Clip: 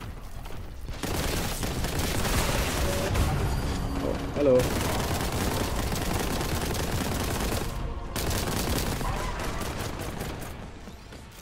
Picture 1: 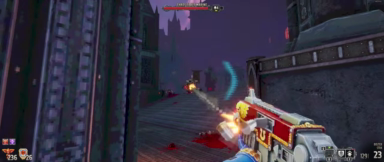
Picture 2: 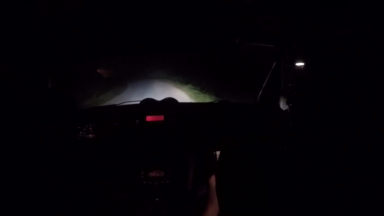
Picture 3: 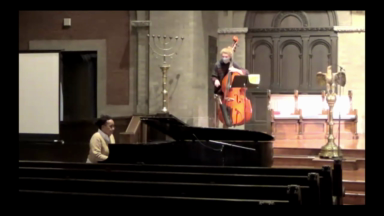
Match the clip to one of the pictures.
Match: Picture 1